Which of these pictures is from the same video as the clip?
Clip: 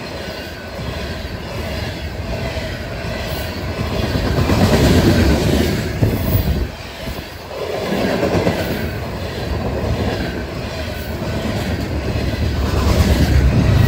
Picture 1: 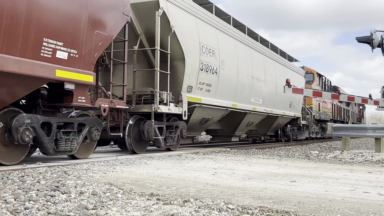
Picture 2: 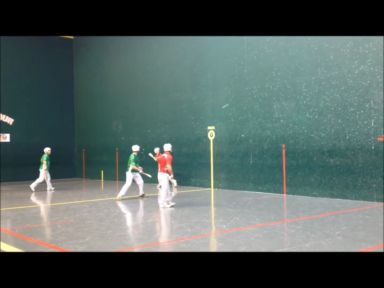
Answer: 1